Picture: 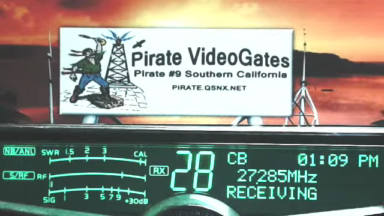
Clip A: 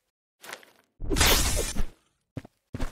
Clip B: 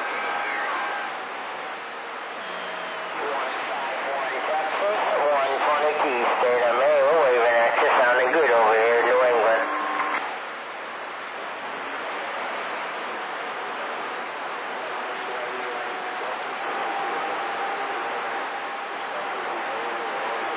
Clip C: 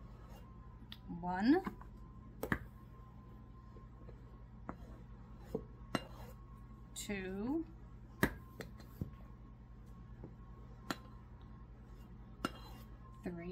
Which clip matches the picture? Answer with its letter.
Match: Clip B